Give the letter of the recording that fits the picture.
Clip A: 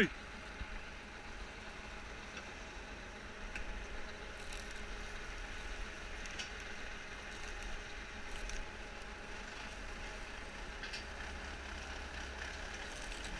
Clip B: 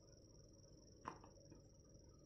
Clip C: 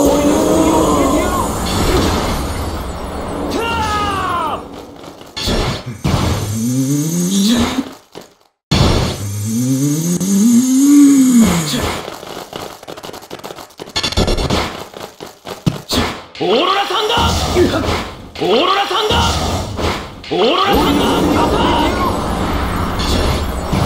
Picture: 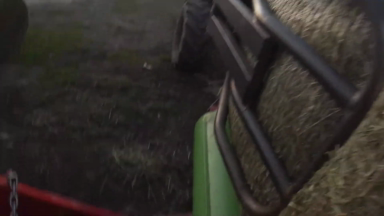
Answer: A